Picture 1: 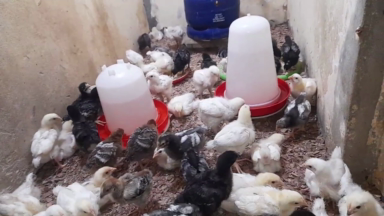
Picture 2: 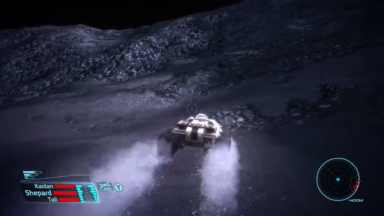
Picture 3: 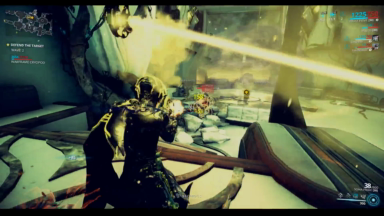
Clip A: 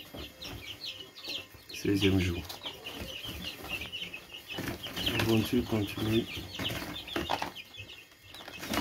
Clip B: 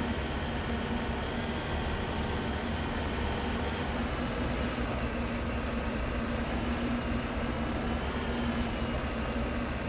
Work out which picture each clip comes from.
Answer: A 1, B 2